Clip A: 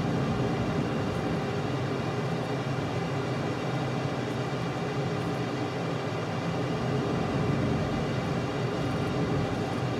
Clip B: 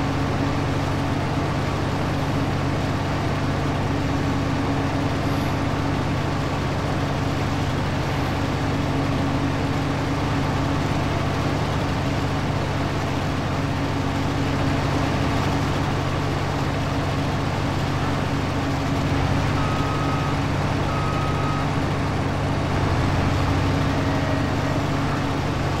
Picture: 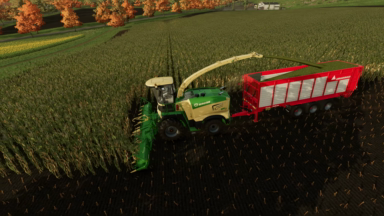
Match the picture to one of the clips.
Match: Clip B